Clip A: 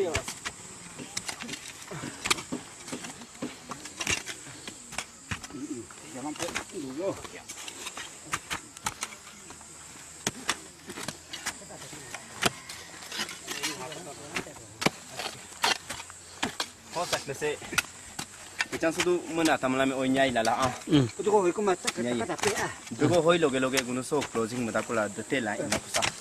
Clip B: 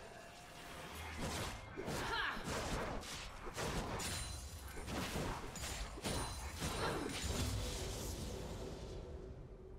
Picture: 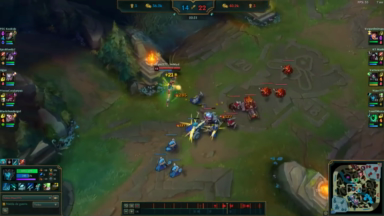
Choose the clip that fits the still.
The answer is B